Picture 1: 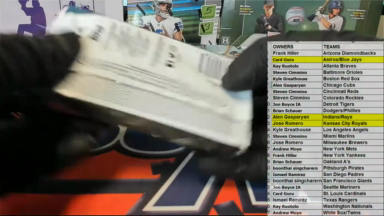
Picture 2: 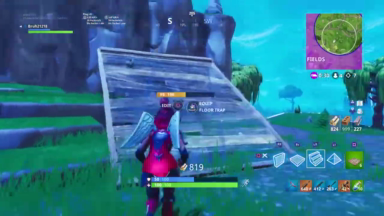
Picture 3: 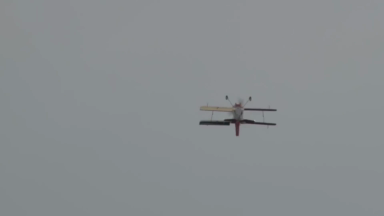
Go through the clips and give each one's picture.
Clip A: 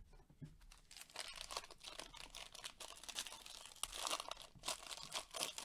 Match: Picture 1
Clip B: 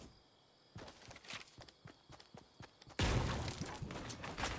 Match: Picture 2